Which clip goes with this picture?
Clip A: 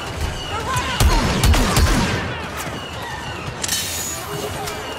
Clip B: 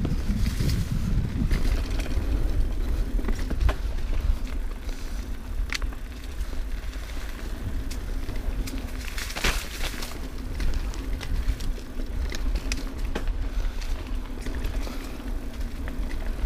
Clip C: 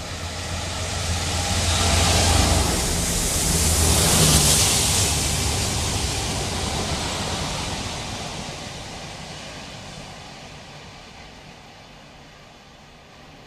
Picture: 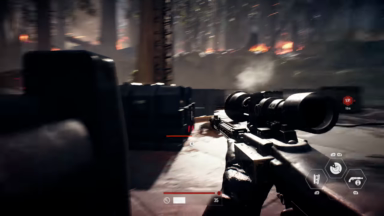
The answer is A